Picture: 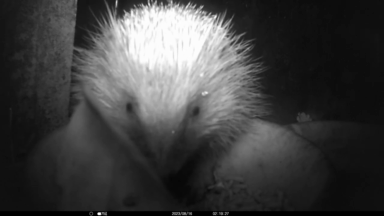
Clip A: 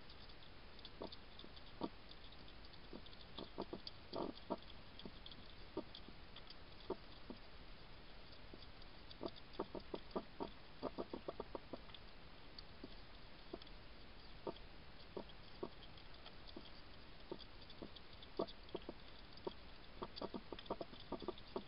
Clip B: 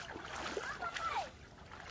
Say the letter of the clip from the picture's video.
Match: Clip A